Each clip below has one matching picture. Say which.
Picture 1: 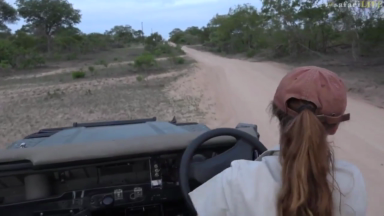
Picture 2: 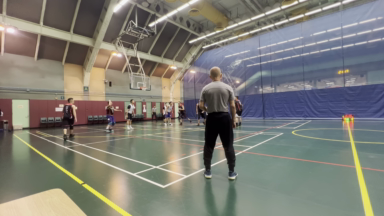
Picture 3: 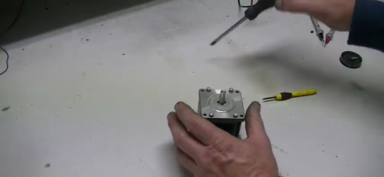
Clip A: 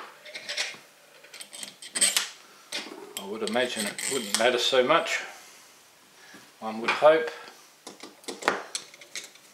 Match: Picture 3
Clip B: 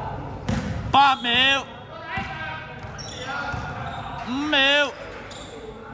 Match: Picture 2